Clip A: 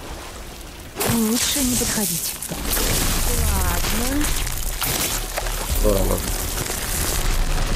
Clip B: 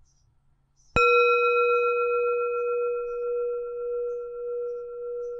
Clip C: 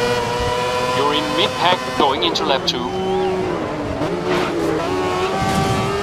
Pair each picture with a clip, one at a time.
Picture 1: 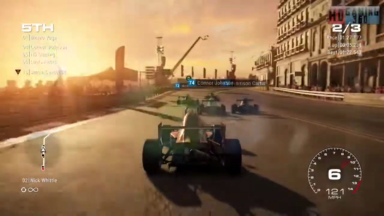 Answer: C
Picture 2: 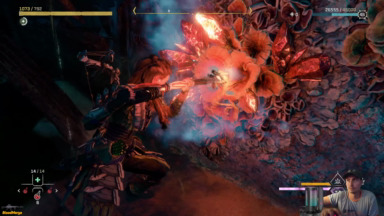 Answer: A